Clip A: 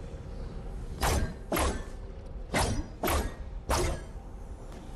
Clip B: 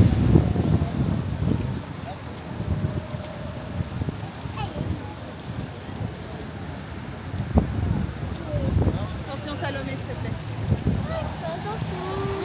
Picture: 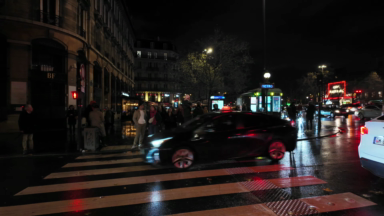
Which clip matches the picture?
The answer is B